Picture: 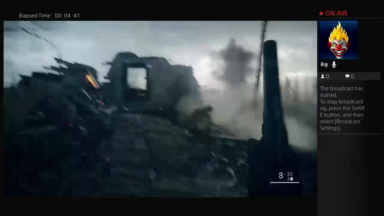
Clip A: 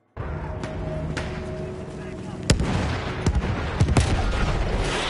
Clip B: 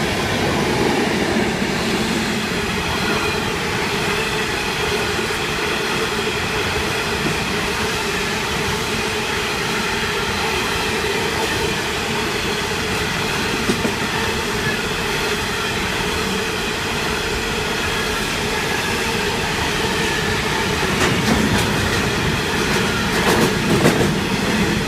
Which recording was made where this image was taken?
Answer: A